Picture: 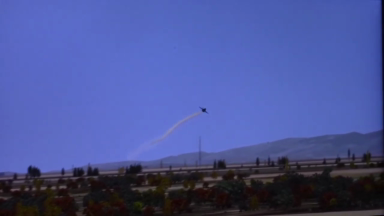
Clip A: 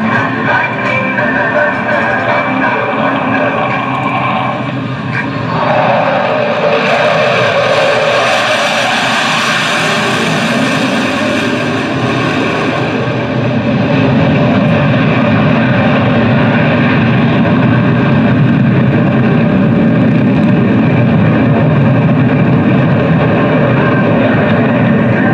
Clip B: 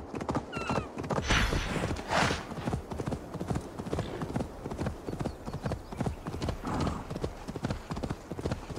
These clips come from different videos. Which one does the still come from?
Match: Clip A